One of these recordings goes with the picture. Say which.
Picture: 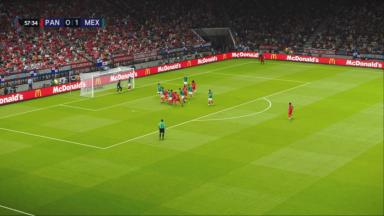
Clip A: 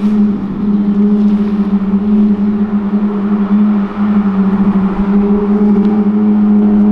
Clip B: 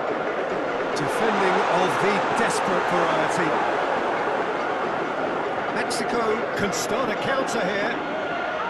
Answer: B